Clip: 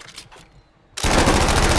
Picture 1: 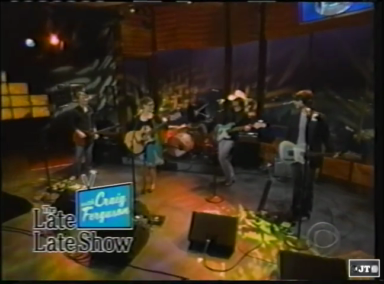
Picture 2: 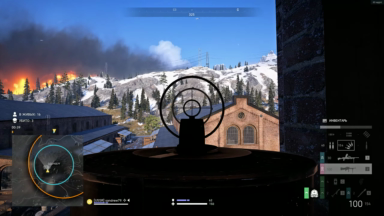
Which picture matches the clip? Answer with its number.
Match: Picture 2